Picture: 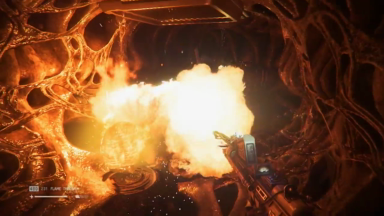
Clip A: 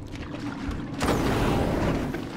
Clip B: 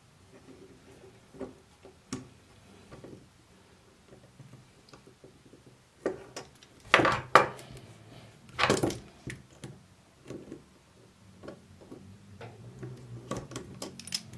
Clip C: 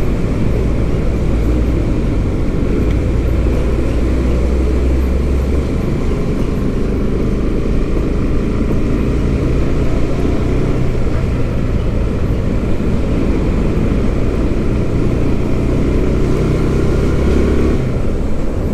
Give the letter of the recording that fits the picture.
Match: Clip A